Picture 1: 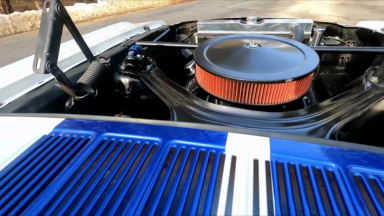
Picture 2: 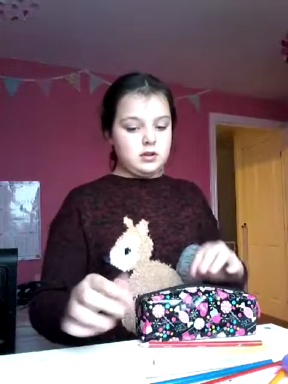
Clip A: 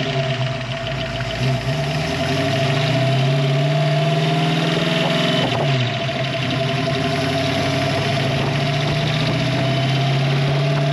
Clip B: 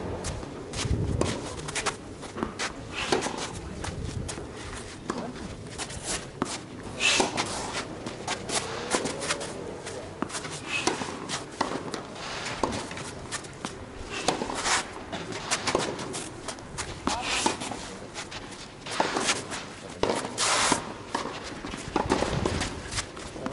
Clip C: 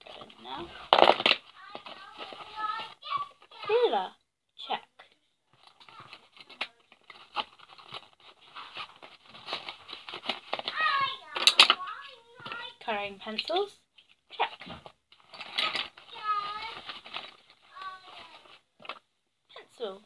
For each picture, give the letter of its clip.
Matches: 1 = A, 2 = C